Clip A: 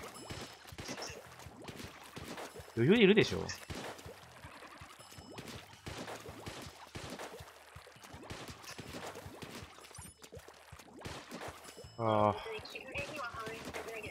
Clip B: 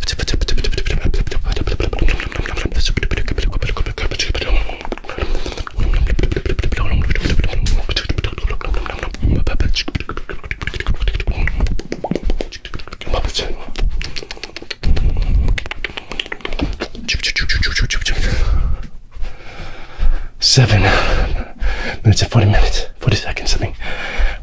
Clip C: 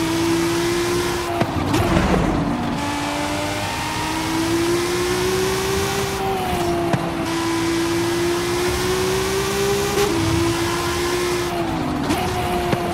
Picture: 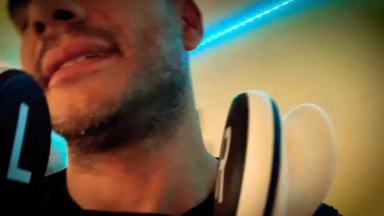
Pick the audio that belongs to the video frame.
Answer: B